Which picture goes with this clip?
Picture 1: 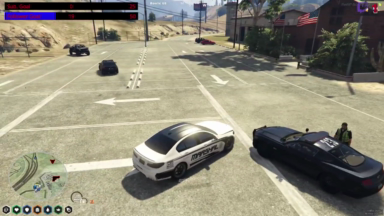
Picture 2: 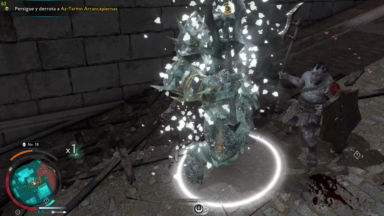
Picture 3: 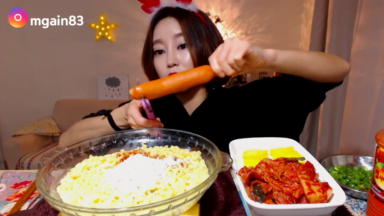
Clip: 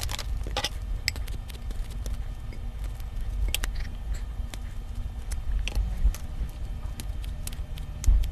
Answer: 3